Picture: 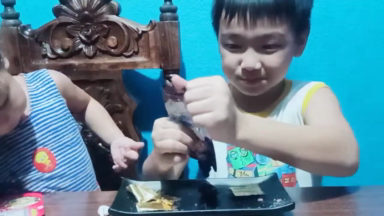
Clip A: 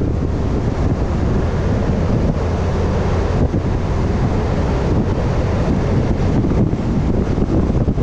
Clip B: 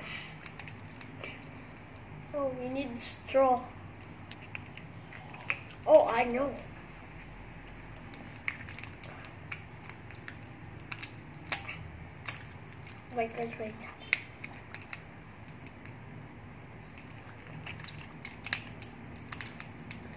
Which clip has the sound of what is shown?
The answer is B